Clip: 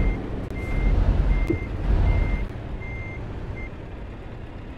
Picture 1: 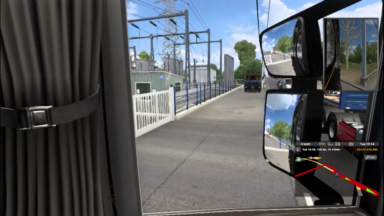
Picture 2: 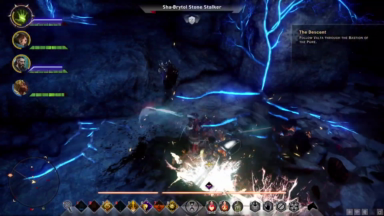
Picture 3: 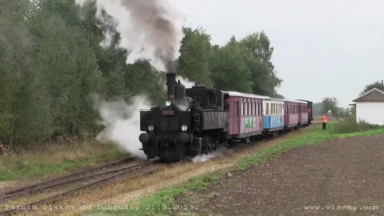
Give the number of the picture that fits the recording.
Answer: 1